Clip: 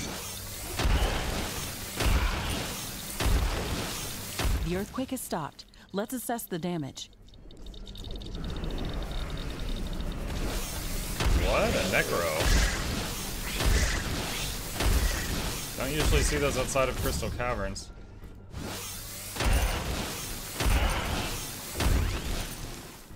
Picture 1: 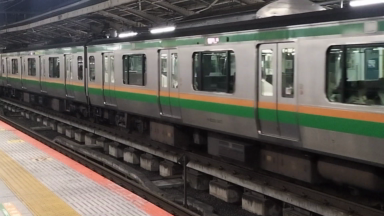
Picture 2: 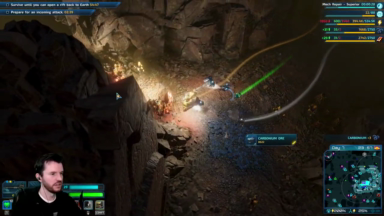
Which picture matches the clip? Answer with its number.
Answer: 2